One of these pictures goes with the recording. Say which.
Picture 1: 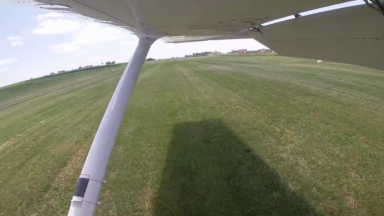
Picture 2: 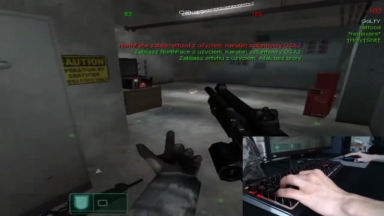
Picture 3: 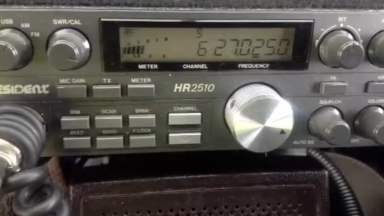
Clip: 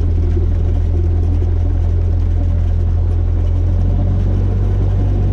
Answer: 1